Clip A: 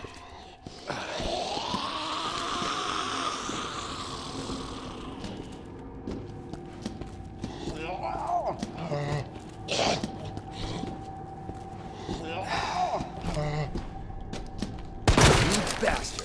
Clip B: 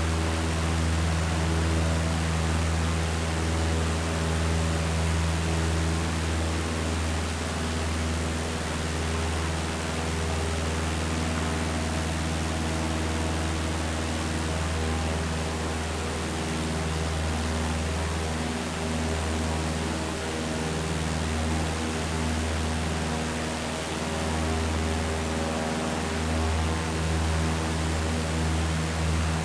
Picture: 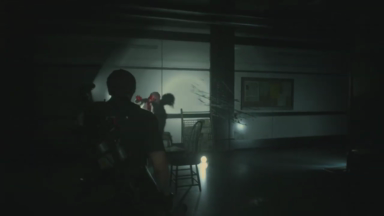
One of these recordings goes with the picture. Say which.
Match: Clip A